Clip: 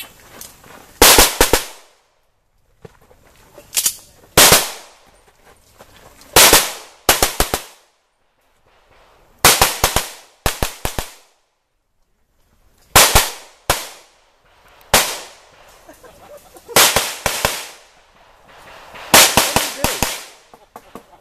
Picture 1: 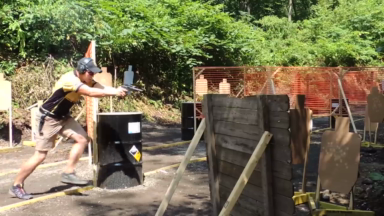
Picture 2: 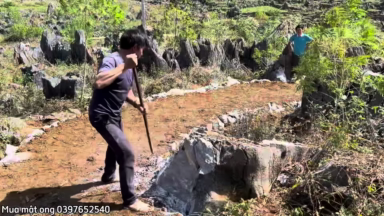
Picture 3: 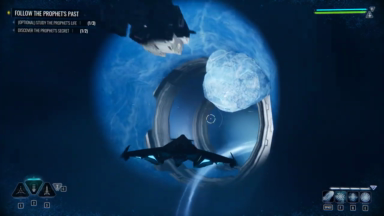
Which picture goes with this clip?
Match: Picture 1